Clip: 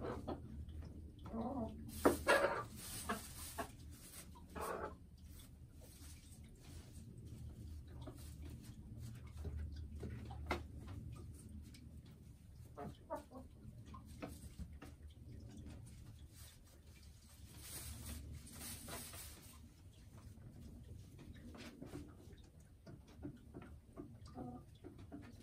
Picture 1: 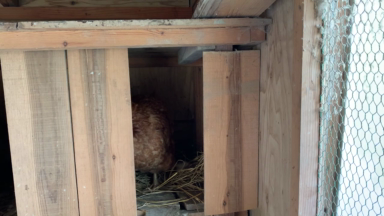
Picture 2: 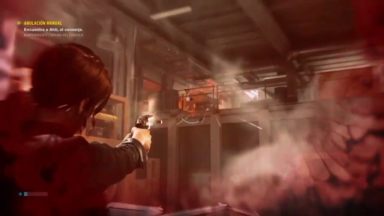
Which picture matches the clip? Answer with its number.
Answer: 1